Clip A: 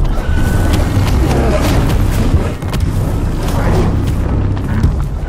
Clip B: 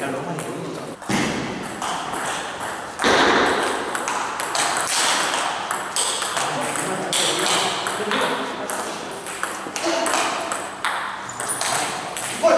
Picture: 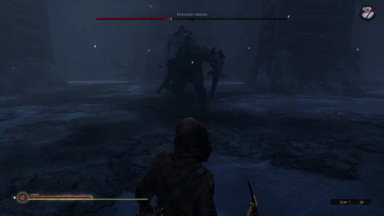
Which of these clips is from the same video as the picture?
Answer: A